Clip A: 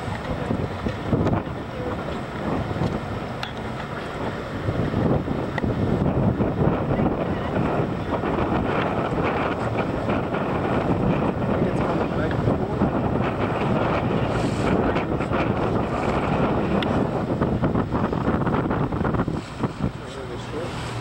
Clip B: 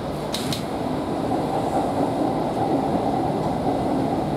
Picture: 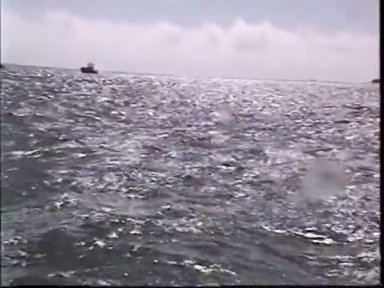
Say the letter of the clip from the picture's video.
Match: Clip A